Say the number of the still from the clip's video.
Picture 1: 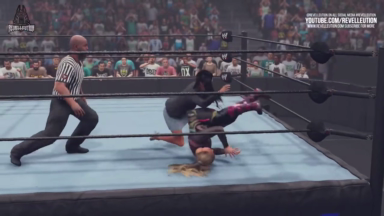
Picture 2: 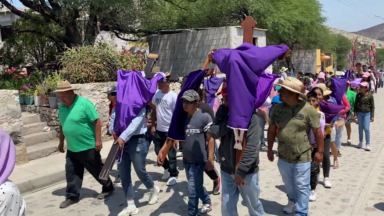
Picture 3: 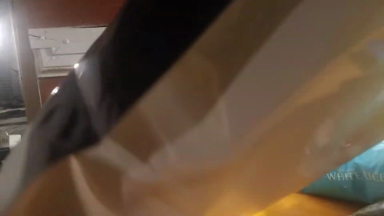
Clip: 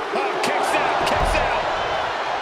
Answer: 1